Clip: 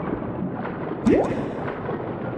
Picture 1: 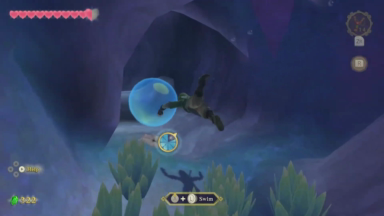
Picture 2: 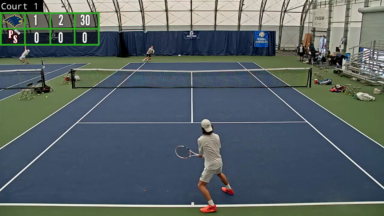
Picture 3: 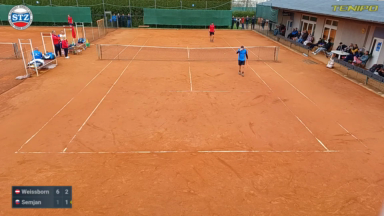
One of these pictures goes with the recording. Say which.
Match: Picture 1